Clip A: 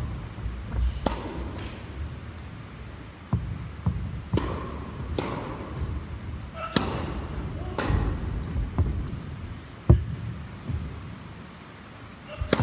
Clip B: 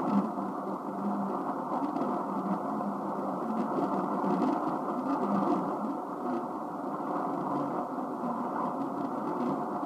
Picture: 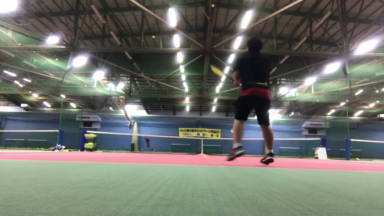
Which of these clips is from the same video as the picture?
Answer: A